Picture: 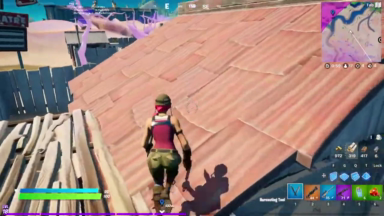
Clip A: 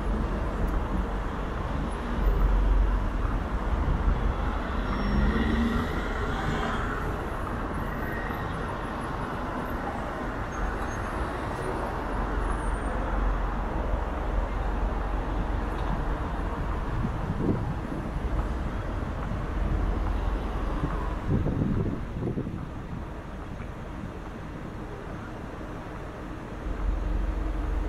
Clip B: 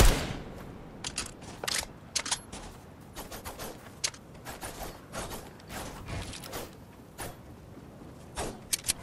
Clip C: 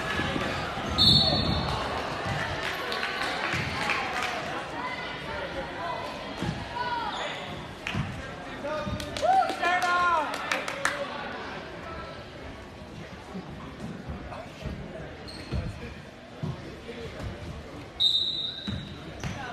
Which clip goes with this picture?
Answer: B